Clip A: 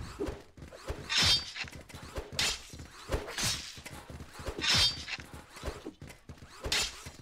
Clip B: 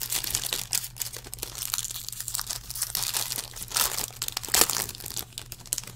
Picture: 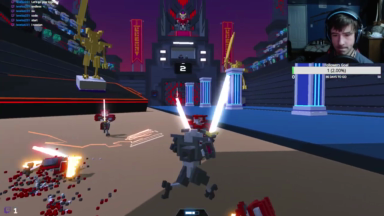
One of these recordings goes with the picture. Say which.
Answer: A